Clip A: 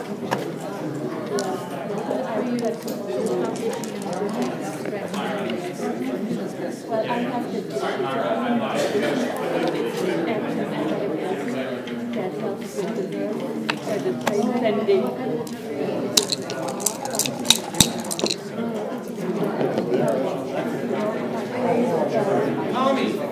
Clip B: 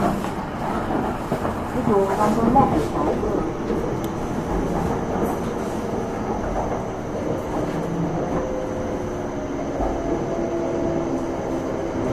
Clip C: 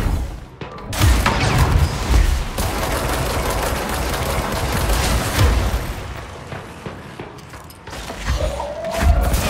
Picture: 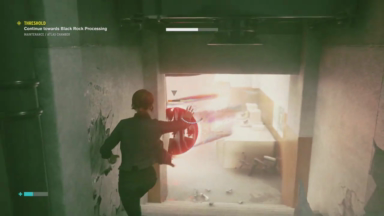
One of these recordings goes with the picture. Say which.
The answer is C